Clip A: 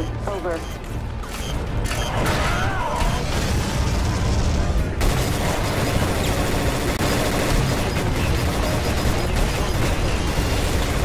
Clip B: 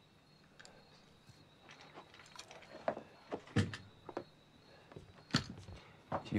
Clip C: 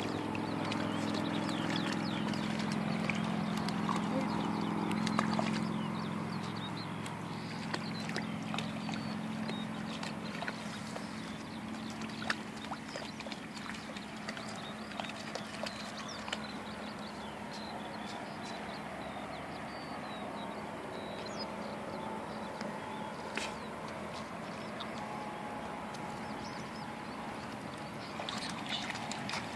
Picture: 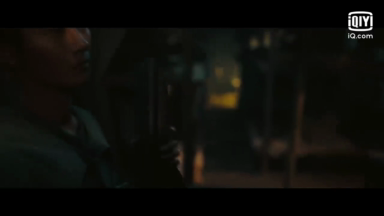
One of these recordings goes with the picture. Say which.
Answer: B